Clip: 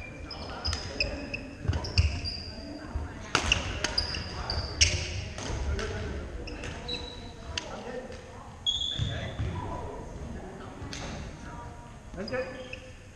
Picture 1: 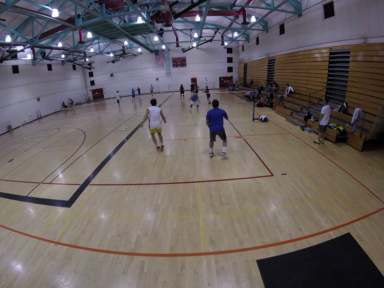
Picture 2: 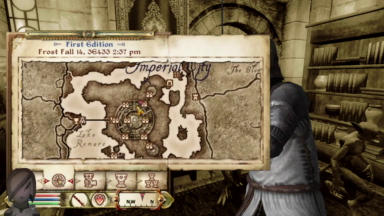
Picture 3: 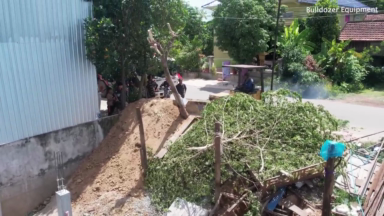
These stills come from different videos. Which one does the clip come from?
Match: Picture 1